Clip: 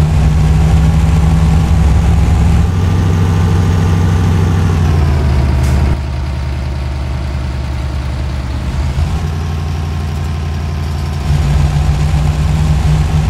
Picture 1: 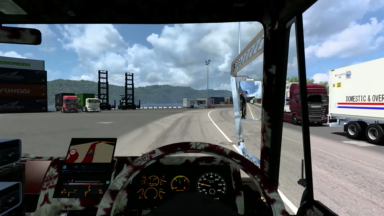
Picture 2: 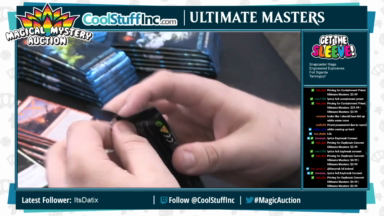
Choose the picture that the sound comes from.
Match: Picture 1